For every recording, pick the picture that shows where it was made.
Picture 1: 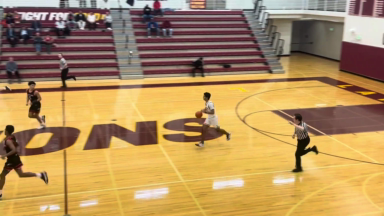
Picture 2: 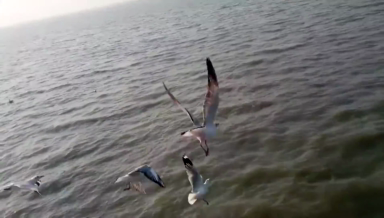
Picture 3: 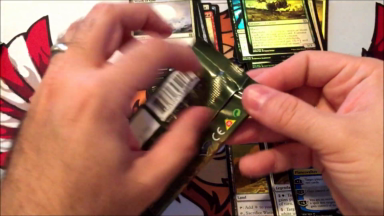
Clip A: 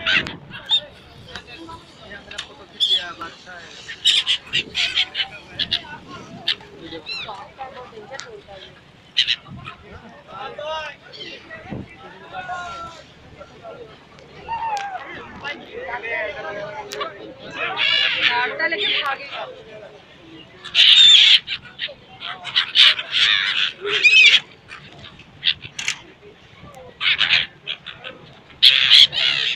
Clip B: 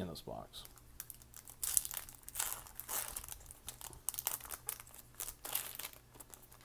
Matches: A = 2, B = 3